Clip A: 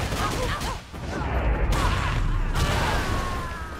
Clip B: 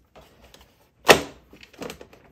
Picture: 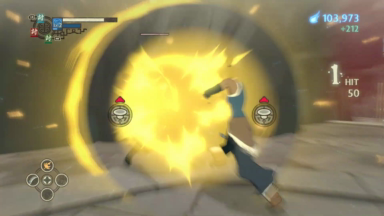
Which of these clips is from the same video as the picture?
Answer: A